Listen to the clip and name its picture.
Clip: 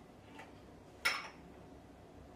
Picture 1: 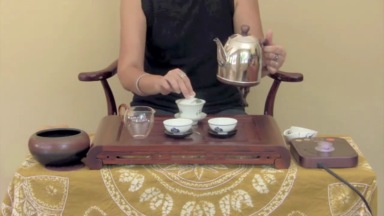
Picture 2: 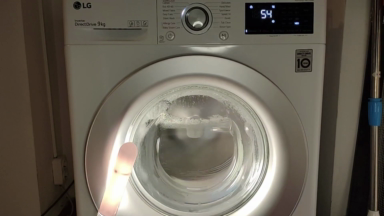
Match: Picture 1